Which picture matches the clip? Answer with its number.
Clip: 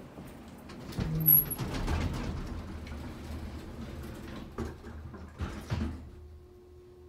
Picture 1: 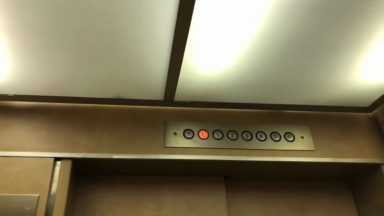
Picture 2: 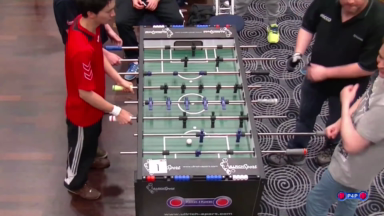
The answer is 1